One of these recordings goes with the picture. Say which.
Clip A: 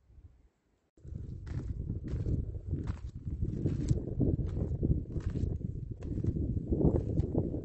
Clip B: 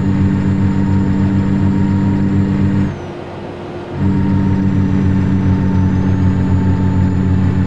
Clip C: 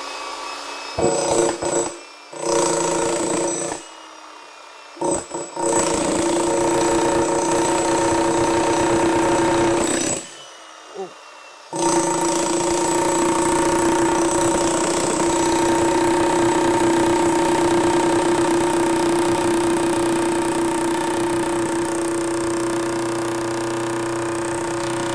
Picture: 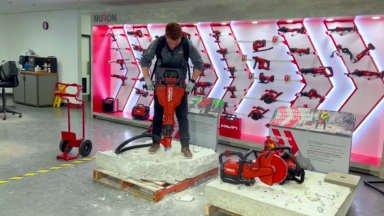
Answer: C